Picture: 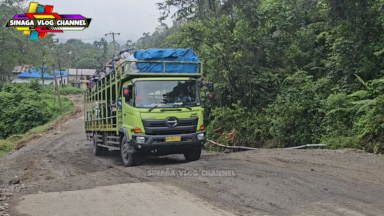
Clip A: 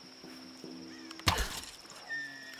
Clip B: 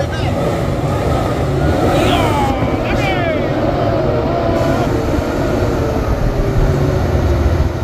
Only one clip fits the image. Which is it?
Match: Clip B